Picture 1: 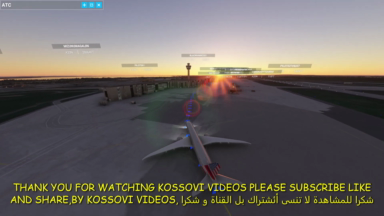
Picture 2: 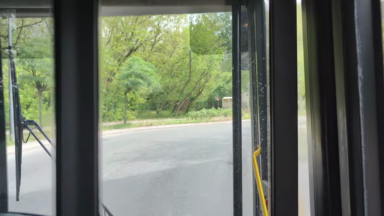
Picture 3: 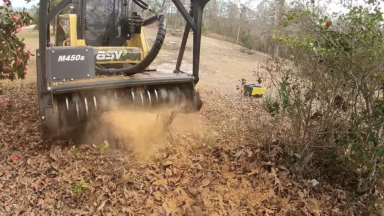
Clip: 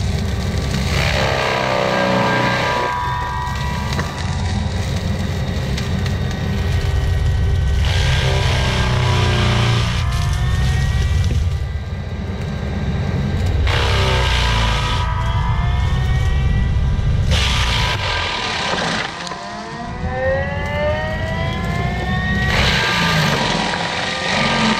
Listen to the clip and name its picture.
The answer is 3